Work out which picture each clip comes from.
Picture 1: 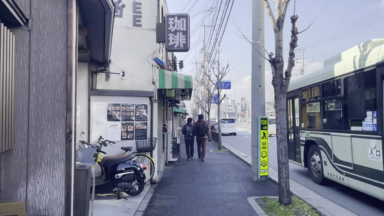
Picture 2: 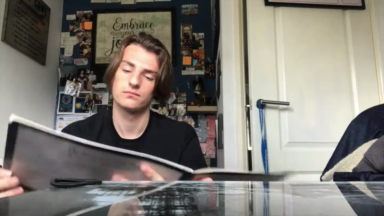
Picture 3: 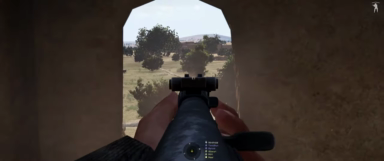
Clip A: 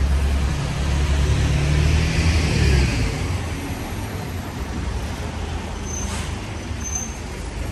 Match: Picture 1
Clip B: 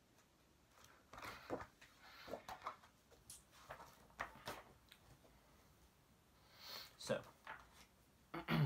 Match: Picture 2